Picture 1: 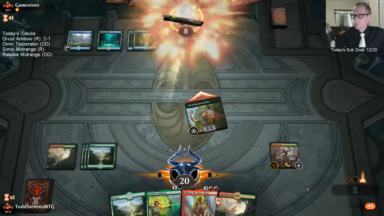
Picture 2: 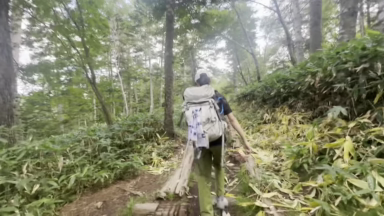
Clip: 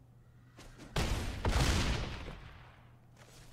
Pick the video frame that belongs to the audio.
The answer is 1